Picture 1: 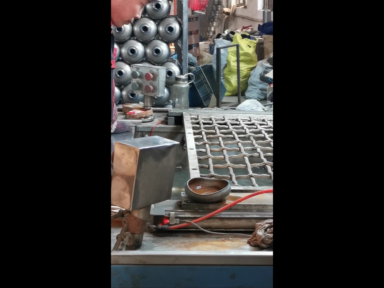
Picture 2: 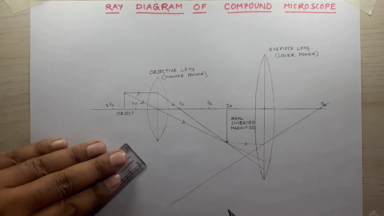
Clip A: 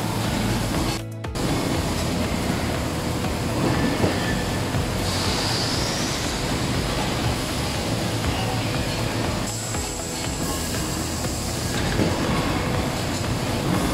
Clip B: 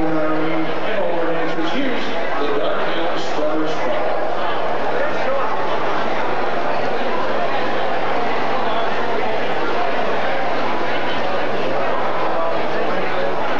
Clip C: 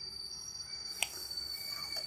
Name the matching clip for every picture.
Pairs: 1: A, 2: C